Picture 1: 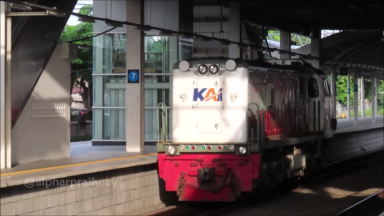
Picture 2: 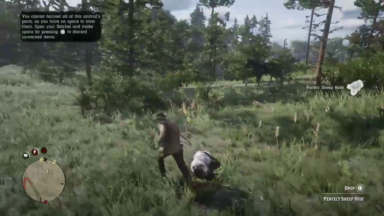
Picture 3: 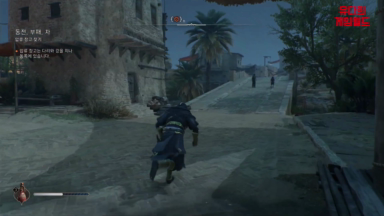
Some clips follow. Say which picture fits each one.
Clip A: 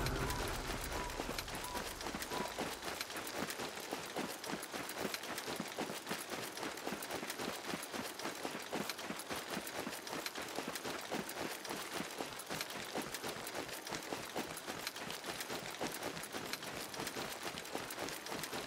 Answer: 3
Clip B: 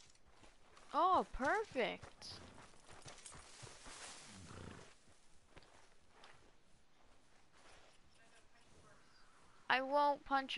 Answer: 2